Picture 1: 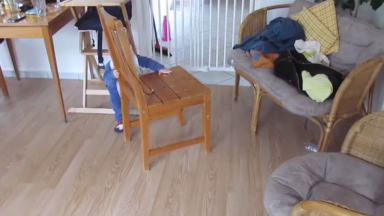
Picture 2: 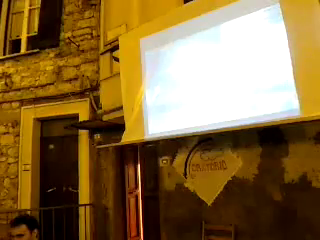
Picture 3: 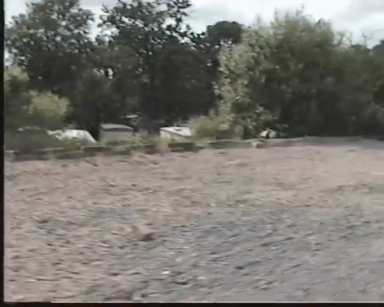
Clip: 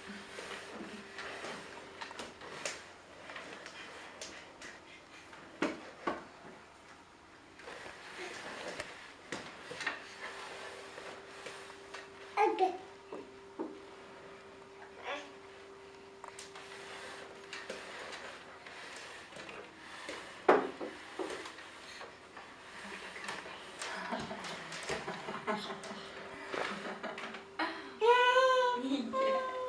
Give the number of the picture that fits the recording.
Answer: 1